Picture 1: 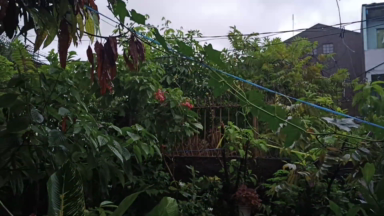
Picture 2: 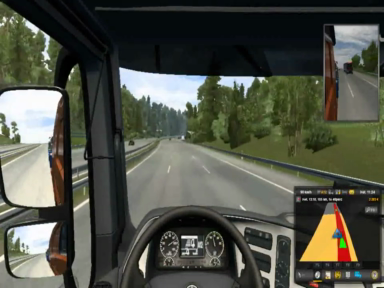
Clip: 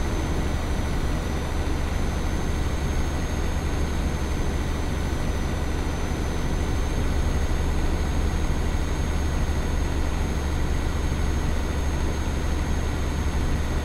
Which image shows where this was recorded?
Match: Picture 2